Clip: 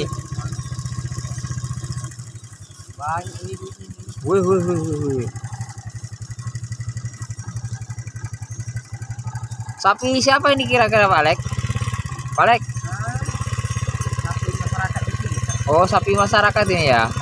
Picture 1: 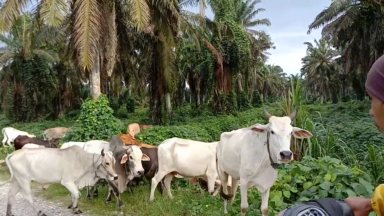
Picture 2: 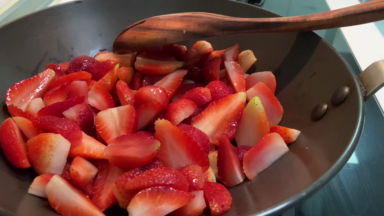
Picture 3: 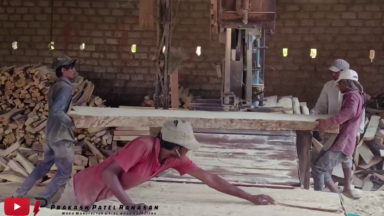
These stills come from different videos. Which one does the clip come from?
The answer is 1